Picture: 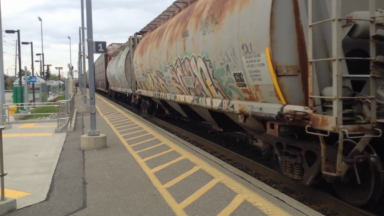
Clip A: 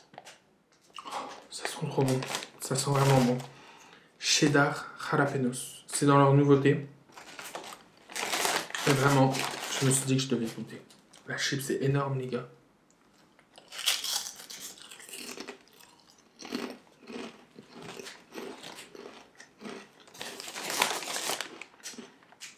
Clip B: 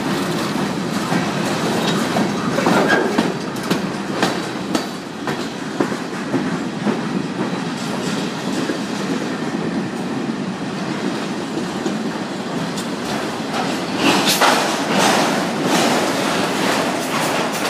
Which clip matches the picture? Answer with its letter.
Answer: B